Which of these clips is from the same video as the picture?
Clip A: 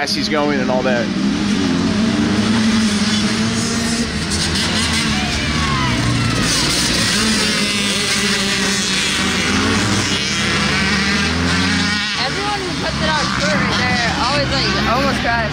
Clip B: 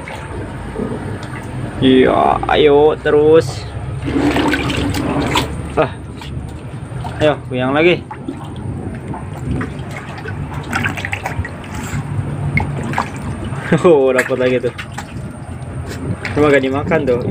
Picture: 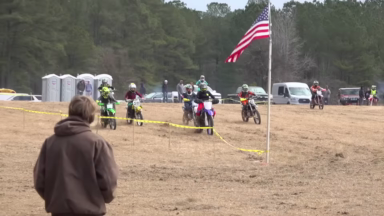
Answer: A